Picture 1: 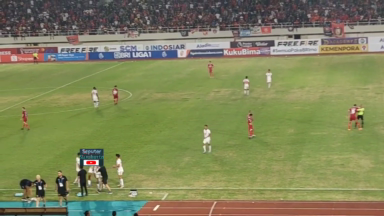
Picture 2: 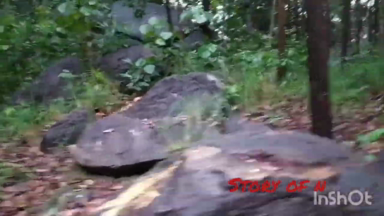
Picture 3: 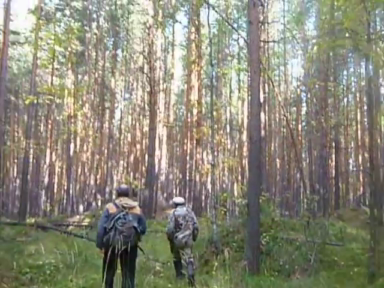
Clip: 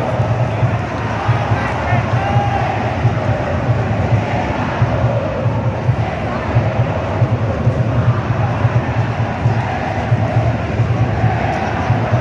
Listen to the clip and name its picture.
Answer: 1